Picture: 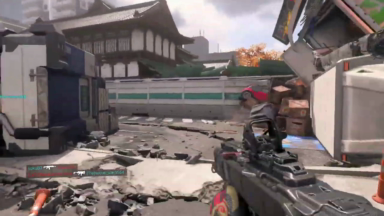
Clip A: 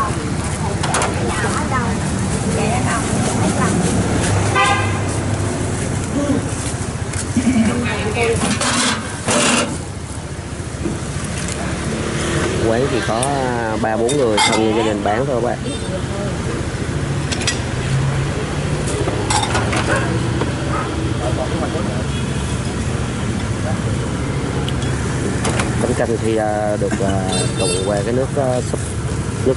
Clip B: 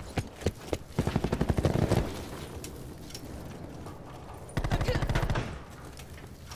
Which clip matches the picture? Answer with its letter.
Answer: B